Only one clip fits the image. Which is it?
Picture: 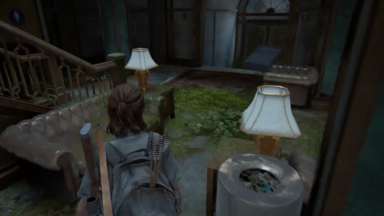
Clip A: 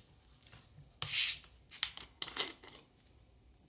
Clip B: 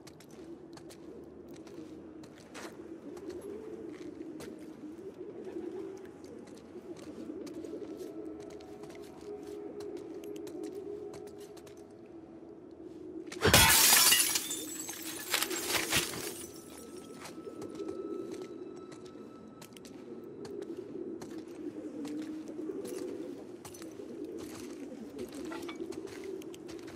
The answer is B